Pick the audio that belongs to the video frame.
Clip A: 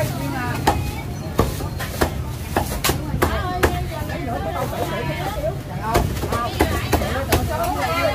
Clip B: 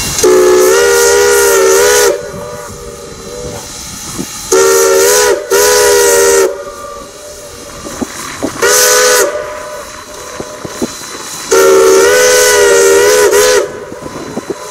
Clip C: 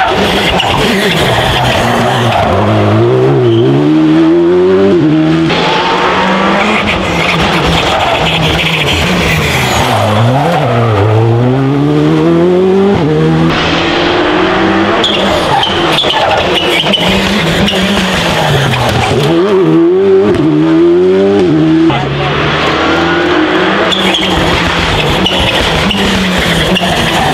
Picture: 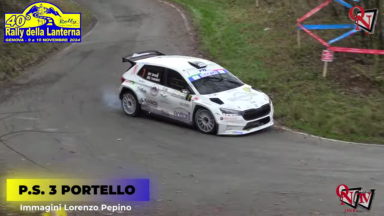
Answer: C